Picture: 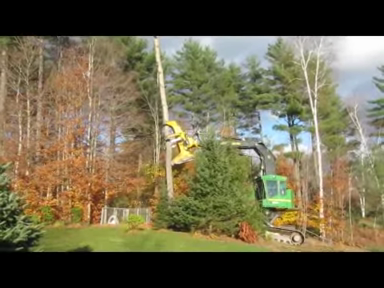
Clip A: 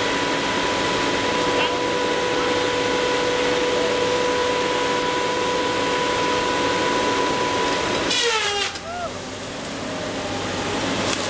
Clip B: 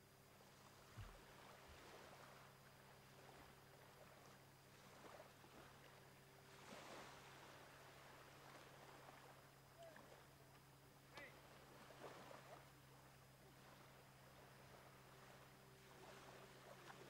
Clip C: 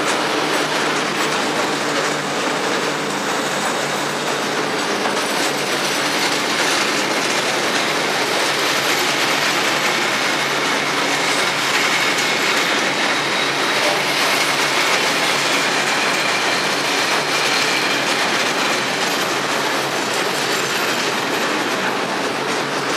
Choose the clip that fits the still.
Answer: A